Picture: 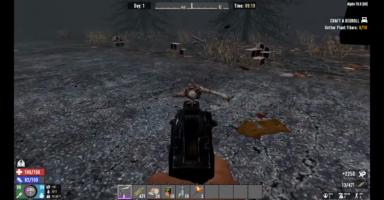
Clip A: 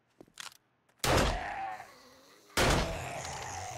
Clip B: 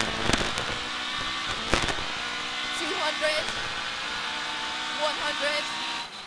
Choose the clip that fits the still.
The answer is A